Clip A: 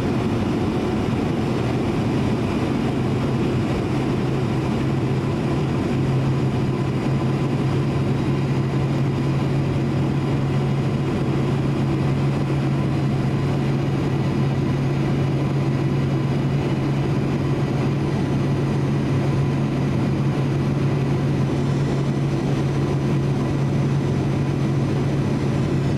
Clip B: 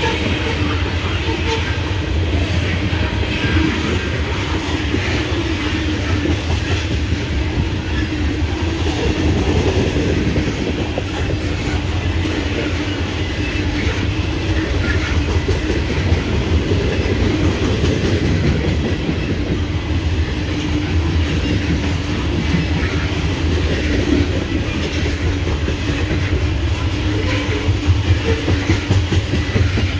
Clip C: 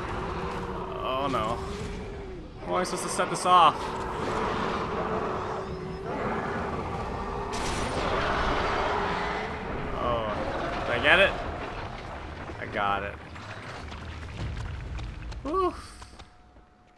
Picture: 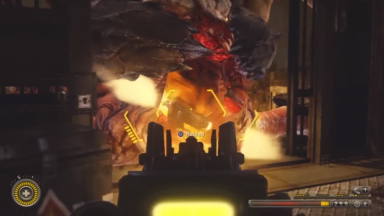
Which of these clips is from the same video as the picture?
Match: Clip C